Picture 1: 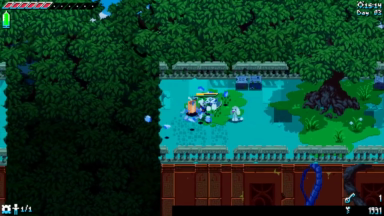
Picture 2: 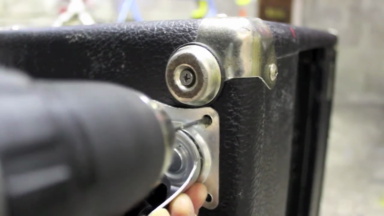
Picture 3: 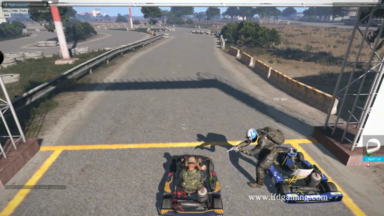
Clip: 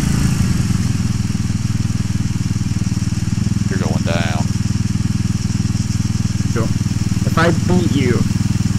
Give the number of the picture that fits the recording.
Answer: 3